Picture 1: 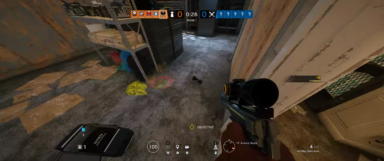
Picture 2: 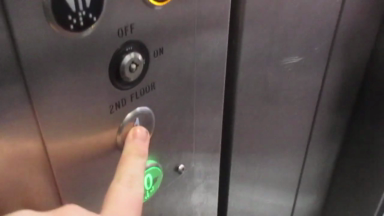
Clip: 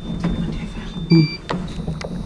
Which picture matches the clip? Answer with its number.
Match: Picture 2